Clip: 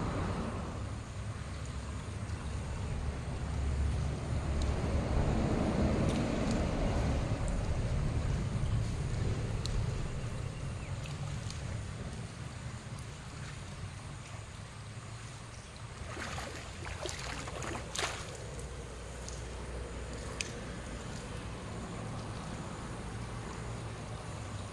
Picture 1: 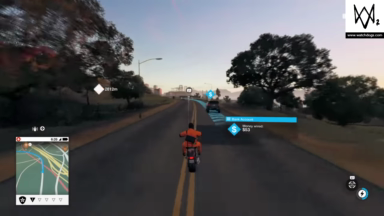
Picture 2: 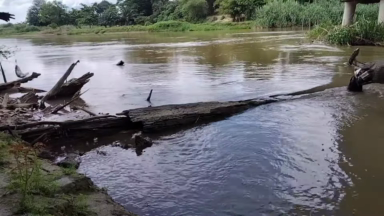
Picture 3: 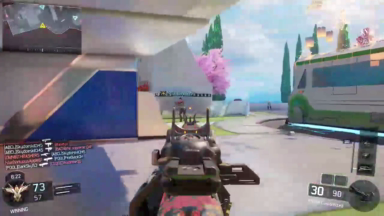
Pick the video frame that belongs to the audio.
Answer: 2